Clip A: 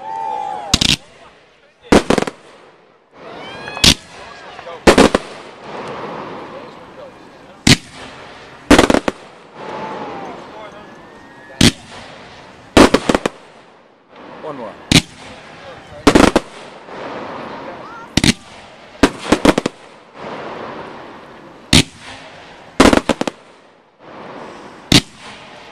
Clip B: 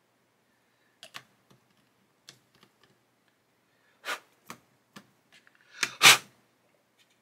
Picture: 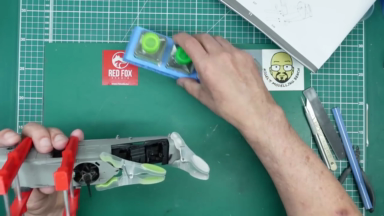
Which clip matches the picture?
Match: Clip B